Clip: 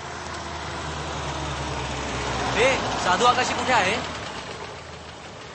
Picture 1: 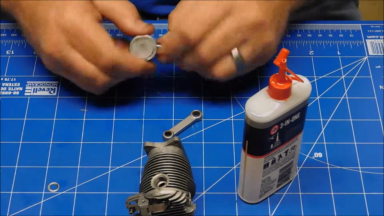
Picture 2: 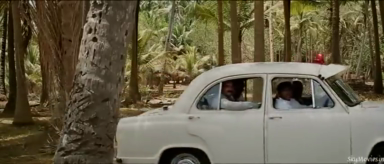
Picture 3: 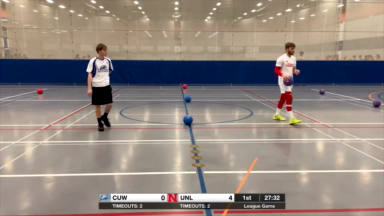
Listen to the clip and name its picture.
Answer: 2